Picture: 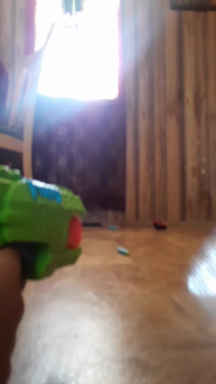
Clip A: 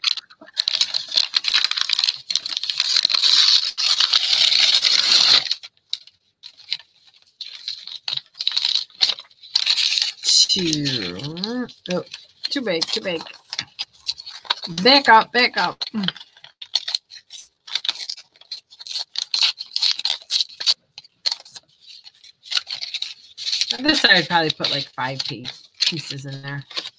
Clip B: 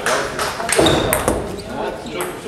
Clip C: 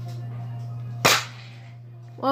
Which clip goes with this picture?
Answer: C